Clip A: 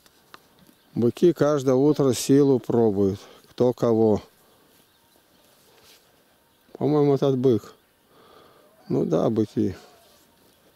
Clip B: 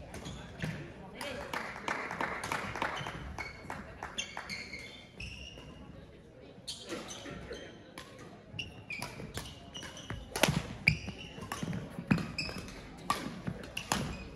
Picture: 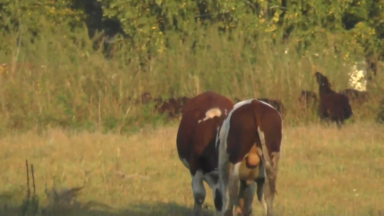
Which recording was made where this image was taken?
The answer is A